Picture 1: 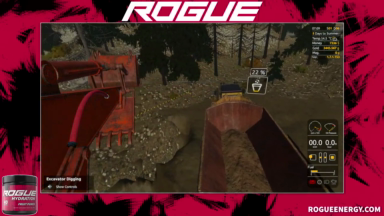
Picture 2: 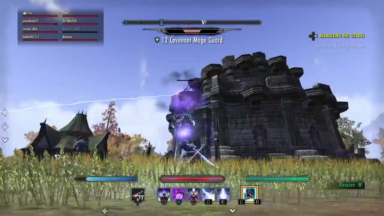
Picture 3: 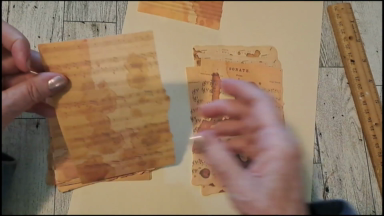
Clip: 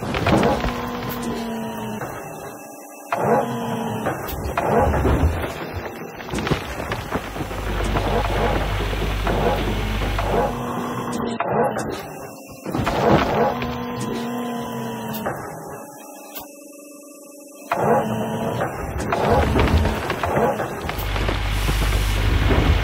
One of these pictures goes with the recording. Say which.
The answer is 1